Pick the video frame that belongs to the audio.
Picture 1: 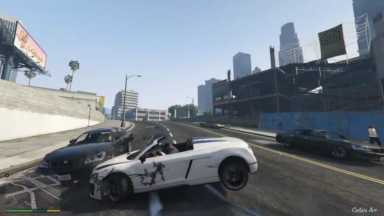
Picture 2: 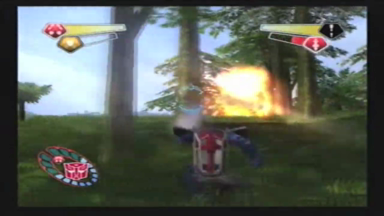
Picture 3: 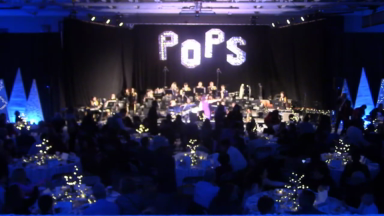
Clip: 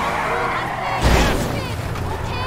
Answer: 1